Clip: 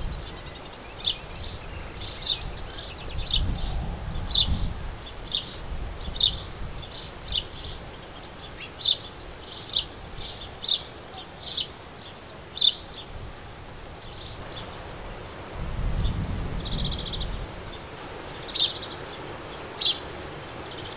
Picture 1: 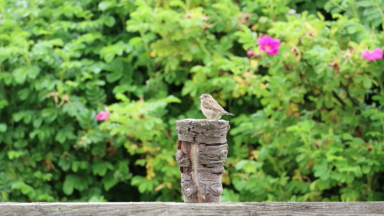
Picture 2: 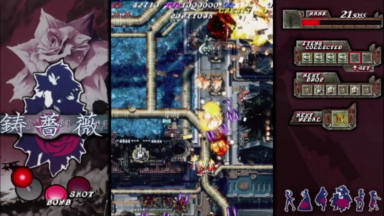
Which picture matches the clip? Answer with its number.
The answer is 1